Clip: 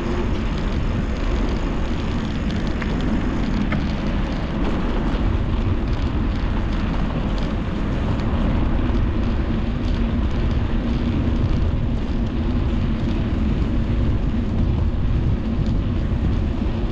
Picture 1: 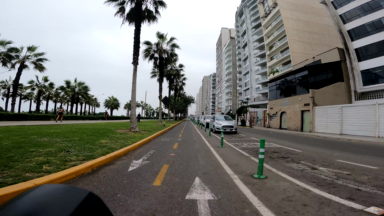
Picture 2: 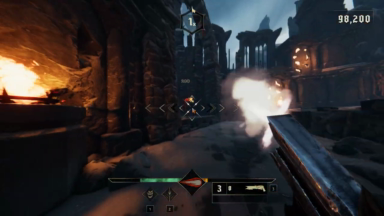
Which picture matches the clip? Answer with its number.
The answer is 1